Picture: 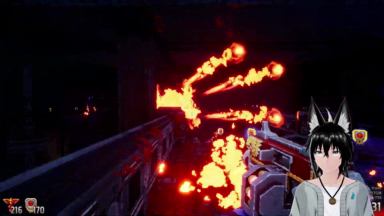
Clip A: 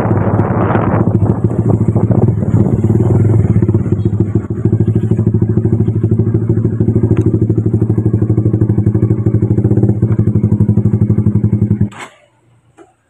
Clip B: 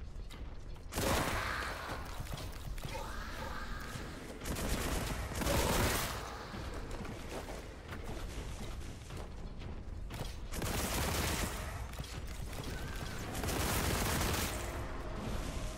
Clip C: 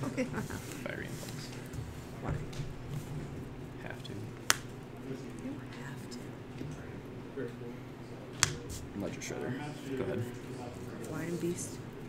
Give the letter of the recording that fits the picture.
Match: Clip B